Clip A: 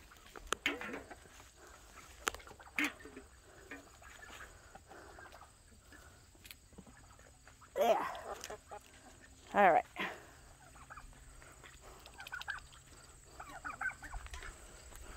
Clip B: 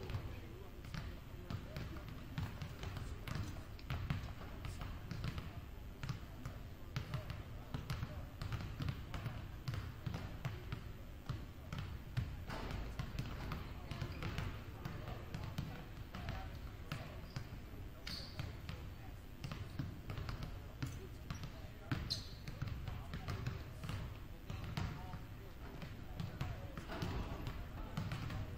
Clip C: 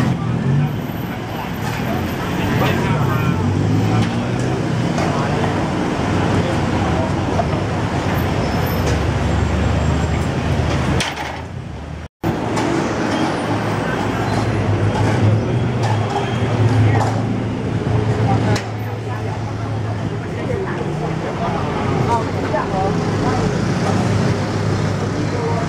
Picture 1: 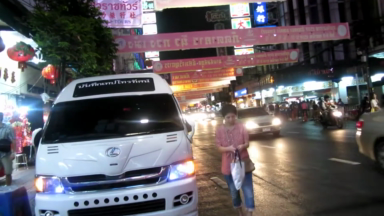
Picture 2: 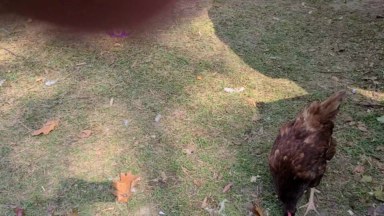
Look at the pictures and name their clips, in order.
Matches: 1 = C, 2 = A